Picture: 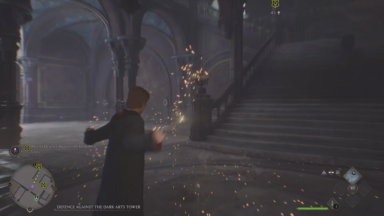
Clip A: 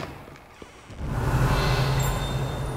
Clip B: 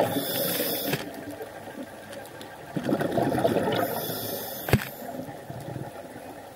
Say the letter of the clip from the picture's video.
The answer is A